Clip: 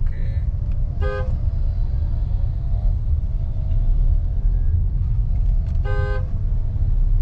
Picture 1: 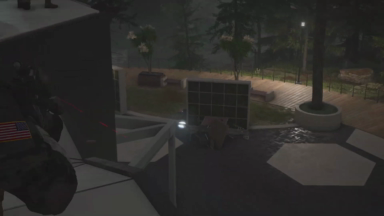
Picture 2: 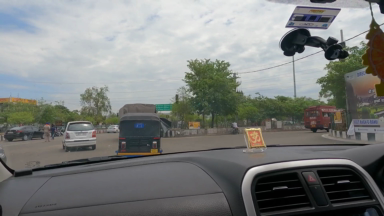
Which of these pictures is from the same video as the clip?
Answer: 2